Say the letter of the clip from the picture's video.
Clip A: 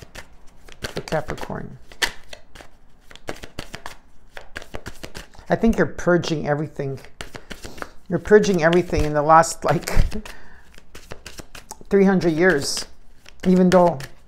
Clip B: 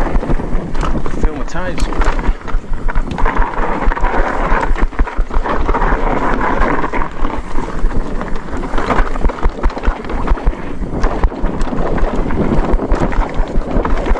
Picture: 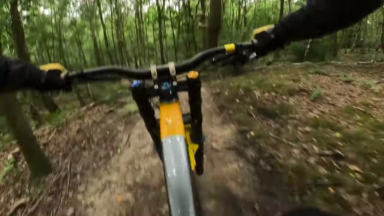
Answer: B